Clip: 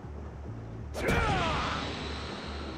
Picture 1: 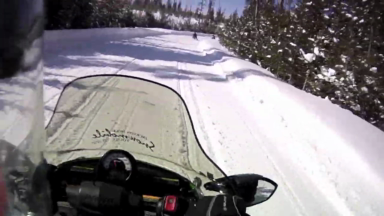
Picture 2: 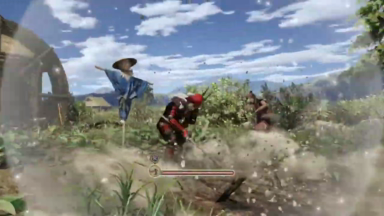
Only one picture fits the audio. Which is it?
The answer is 2